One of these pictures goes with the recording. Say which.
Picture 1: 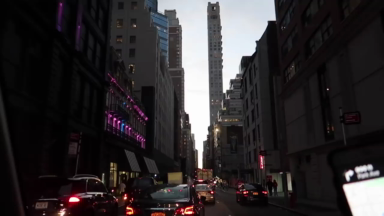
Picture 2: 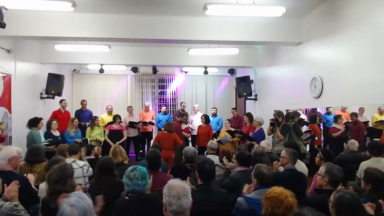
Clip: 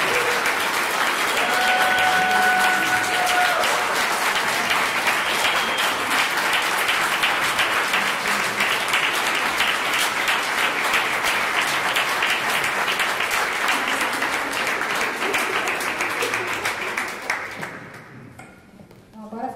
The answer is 2